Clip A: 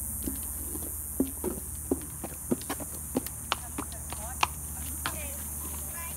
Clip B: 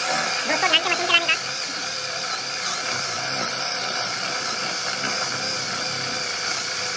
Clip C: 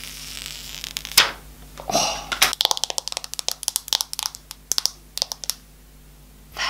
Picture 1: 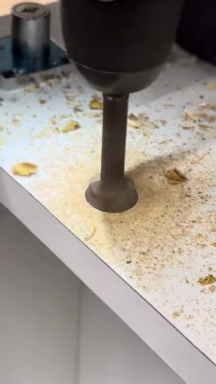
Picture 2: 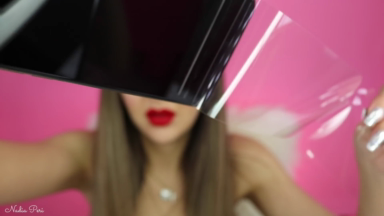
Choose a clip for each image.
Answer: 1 B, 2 C